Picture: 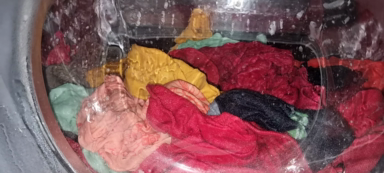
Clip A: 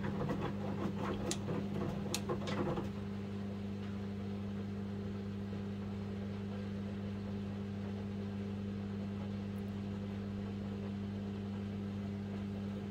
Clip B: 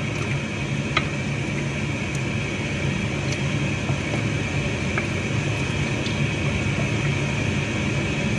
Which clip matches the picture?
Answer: A